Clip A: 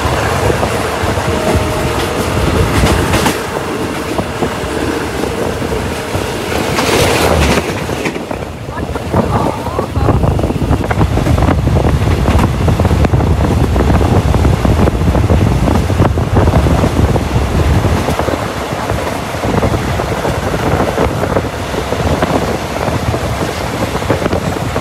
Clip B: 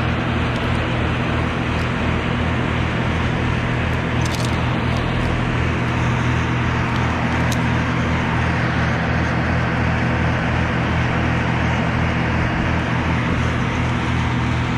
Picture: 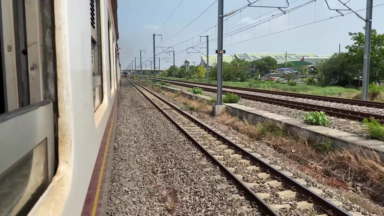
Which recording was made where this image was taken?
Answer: A